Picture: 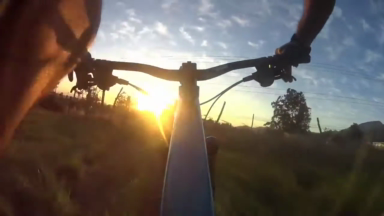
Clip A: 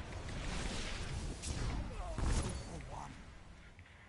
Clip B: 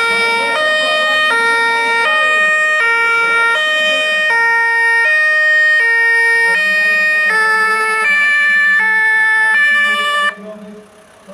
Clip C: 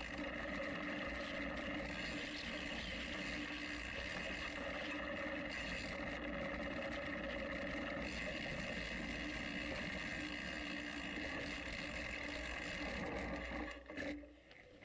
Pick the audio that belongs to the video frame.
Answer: C